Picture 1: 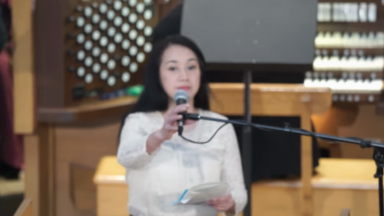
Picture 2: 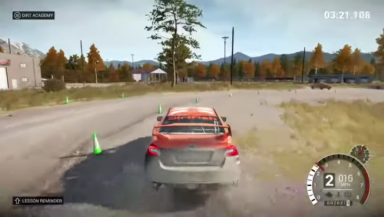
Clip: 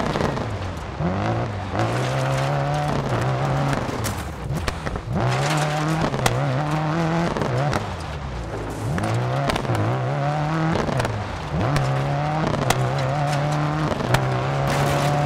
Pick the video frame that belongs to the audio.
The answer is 2